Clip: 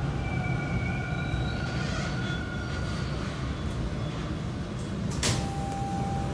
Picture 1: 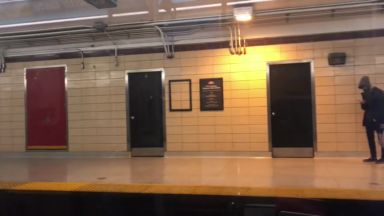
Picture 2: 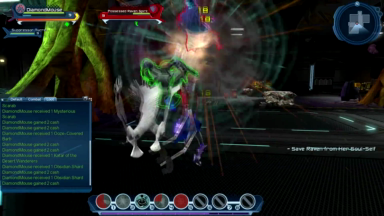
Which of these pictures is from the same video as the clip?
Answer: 1